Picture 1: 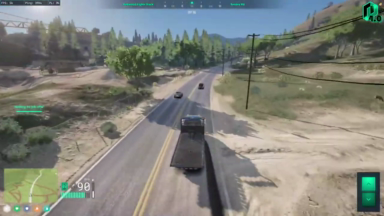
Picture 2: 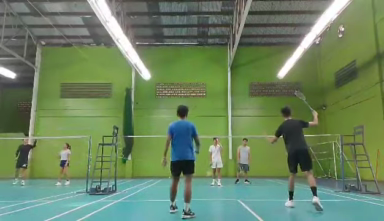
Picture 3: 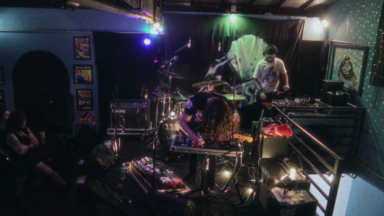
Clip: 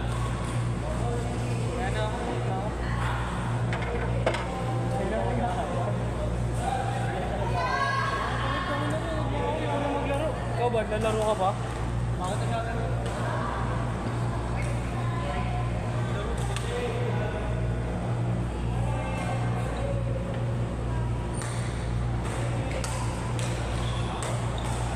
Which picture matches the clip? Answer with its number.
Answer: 2